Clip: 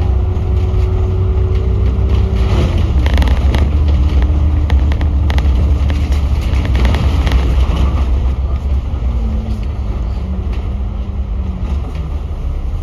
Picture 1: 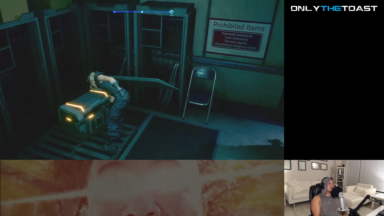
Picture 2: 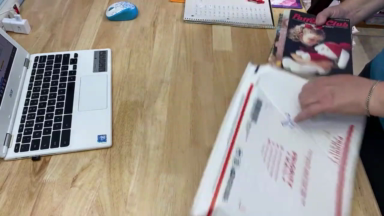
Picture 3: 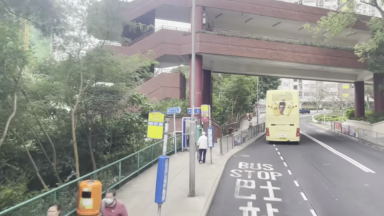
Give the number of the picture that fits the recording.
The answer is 3